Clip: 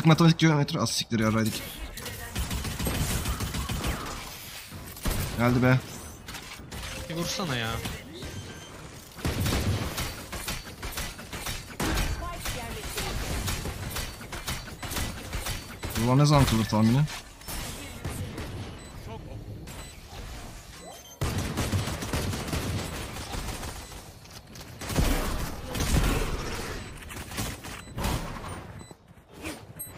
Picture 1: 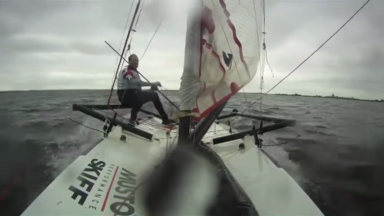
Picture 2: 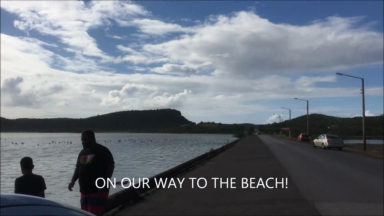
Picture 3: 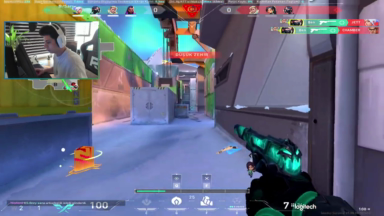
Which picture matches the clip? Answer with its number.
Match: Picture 3